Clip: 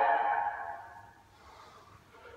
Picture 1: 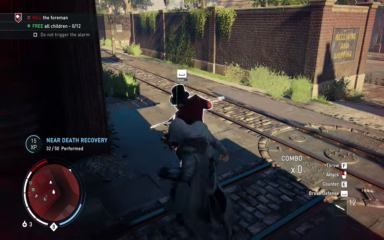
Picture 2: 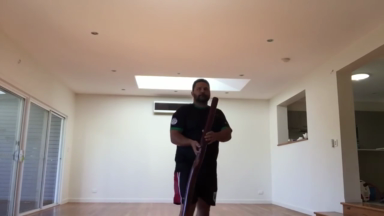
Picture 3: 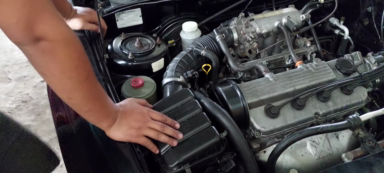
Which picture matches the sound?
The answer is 2